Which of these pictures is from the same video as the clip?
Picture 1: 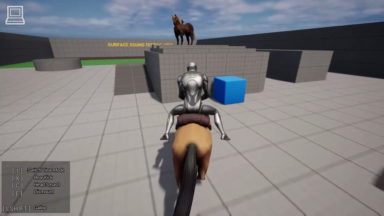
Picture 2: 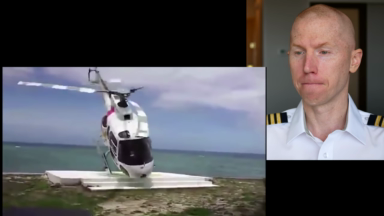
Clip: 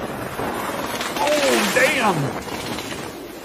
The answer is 2